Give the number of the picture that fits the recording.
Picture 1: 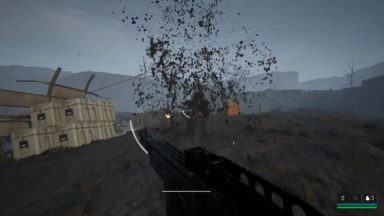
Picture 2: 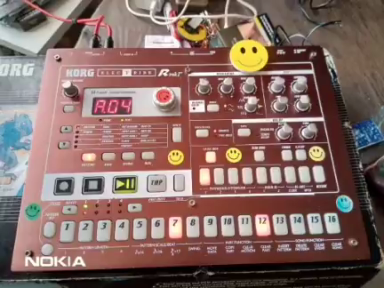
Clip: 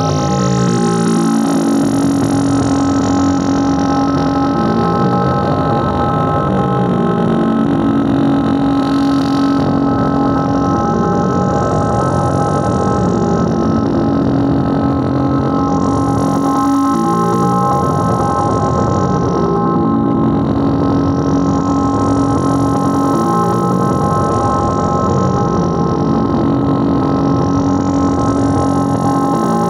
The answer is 2